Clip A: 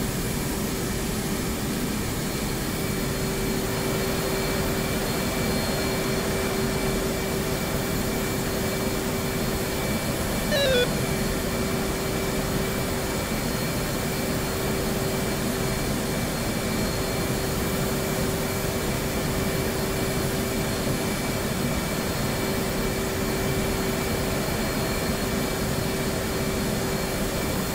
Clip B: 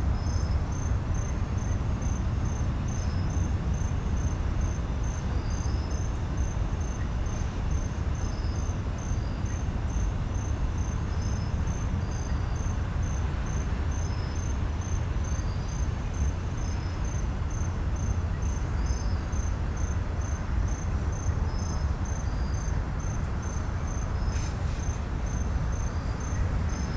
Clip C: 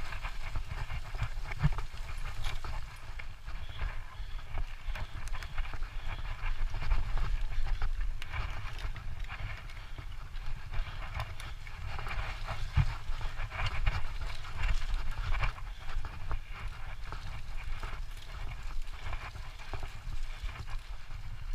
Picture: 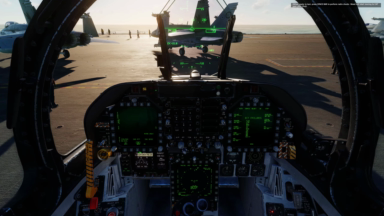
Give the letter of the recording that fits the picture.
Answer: A